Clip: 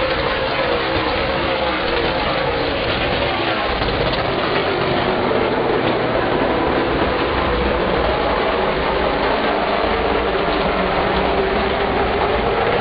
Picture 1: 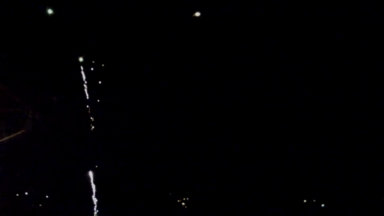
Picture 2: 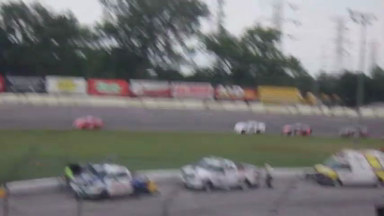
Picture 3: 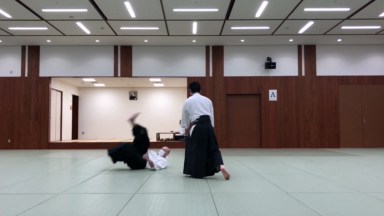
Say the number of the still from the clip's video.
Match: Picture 2